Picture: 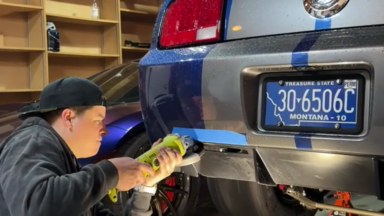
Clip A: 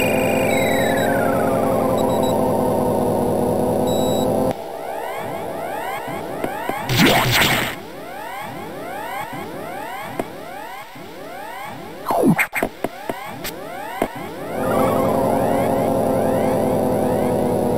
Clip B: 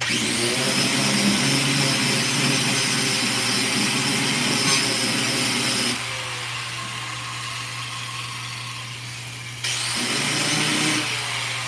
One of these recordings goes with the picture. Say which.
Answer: B